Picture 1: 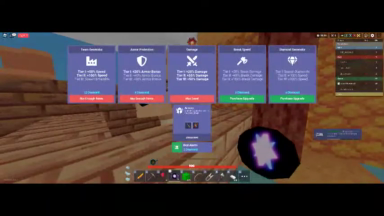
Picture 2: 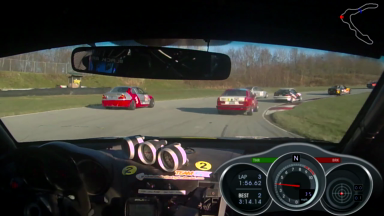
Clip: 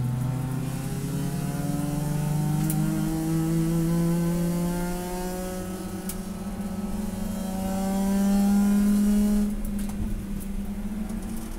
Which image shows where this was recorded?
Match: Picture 2